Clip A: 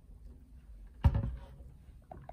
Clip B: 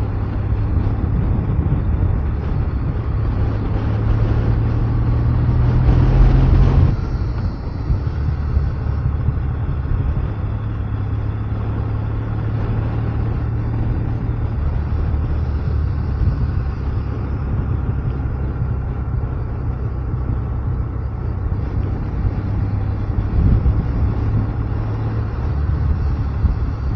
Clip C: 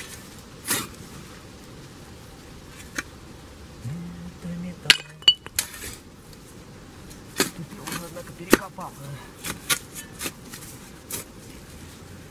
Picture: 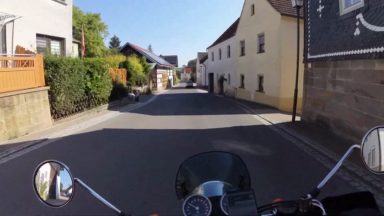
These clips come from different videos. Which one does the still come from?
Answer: B